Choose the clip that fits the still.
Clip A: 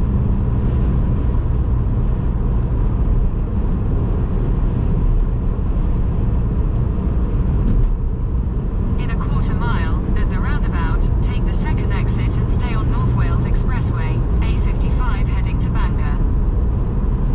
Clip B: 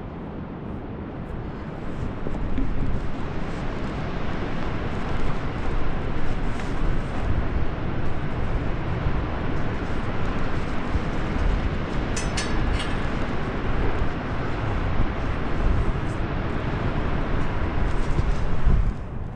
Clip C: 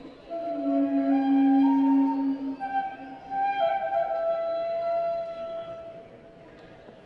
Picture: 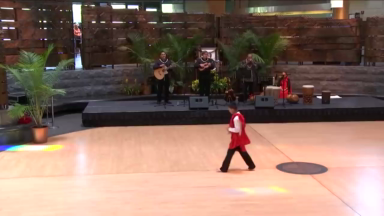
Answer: C